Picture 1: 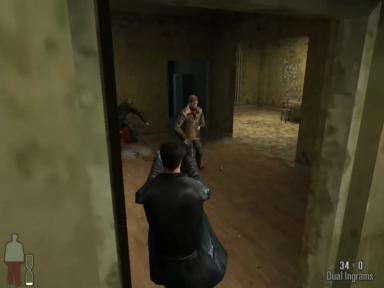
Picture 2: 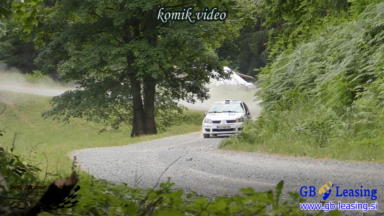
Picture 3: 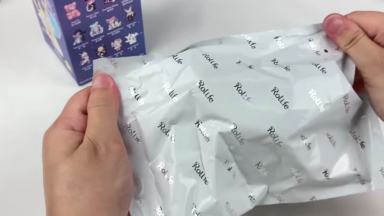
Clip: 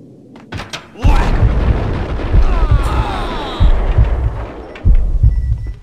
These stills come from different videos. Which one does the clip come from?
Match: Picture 1